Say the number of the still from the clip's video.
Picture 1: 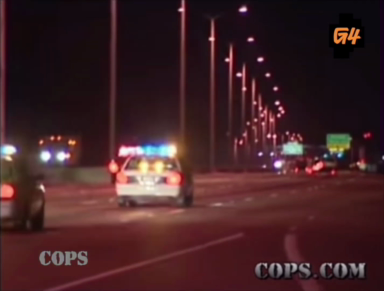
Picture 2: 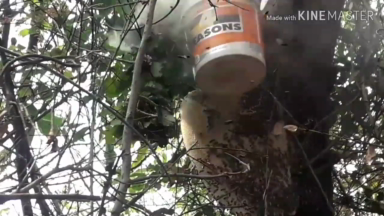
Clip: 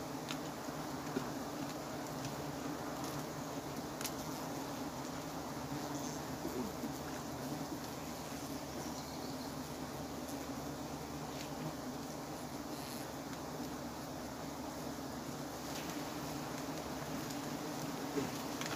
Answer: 2